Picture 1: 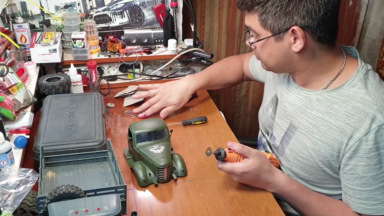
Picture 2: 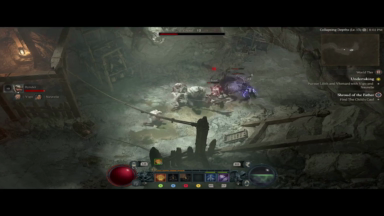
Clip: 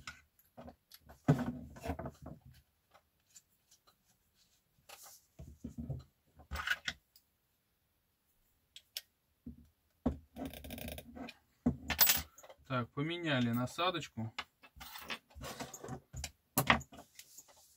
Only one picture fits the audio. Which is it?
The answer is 1